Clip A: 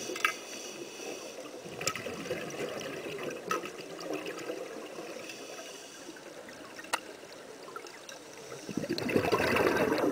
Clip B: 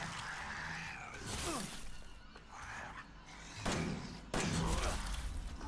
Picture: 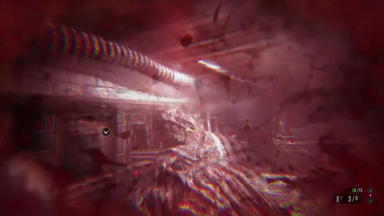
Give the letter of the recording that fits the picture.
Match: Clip B